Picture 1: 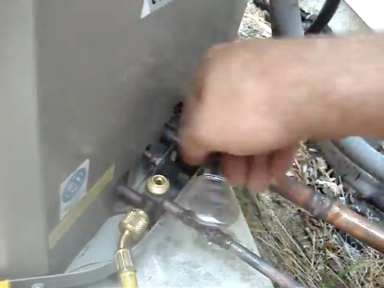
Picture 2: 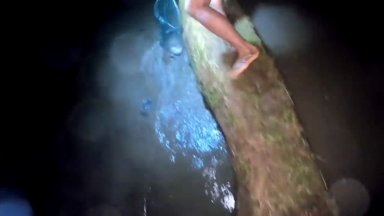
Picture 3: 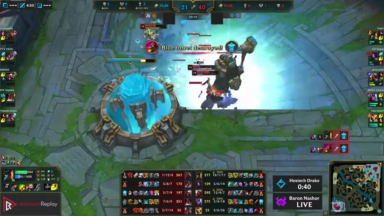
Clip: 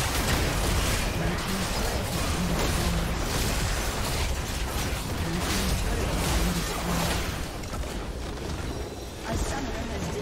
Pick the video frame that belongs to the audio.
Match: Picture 3